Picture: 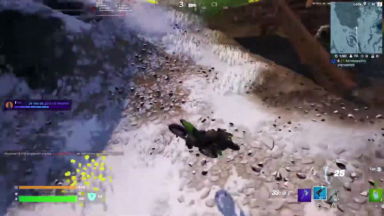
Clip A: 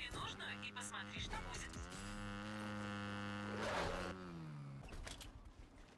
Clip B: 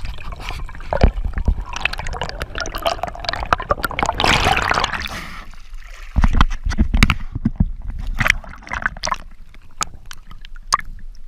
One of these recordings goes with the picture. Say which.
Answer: A